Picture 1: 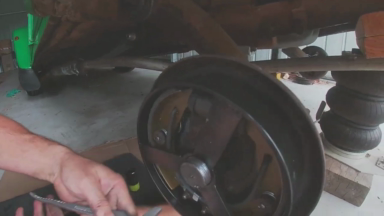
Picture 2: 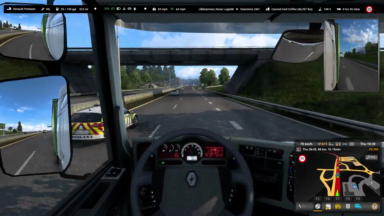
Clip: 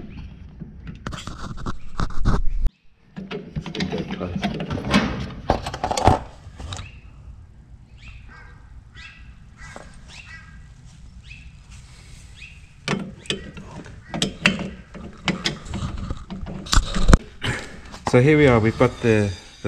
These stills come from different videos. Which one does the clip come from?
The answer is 1